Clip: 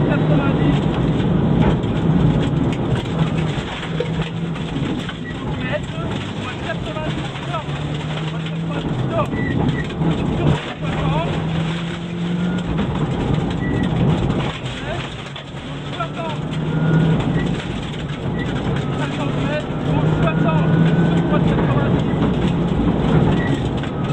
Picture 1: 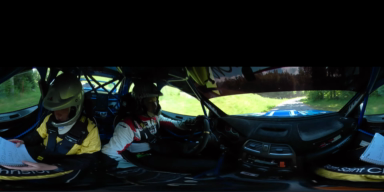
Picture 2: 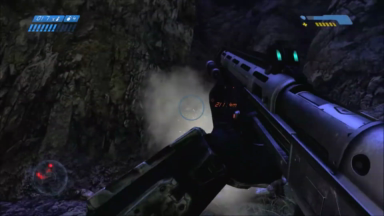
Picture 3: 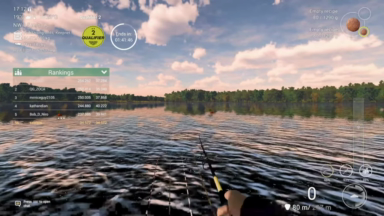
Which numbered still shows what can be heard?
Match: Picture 1